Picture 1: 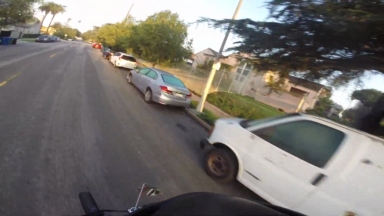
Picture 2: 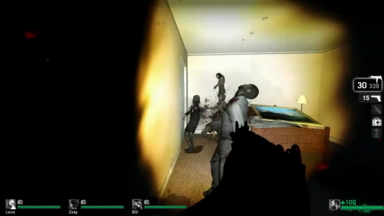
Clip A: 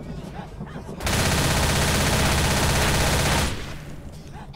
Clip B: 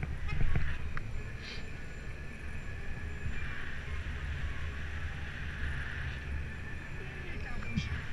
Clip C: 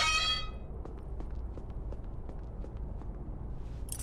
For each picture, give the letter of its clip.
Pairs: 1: B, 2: A